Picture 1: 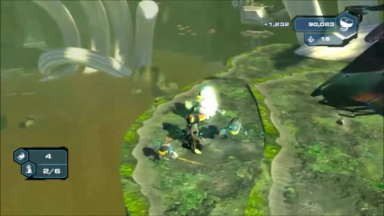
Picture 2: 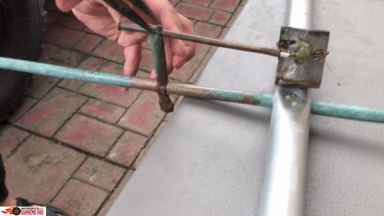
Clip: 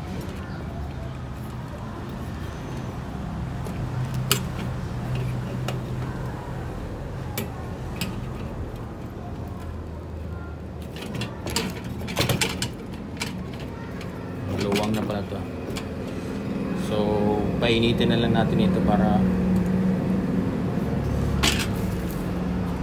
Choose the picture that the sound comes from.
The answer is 2